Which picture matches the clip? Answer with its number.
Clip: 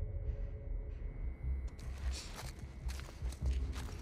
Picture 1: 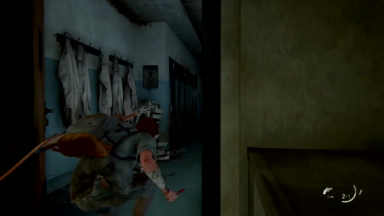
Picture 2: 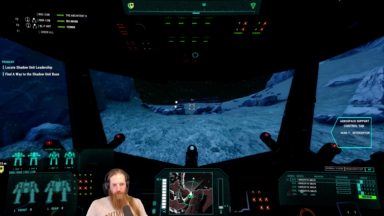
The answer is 1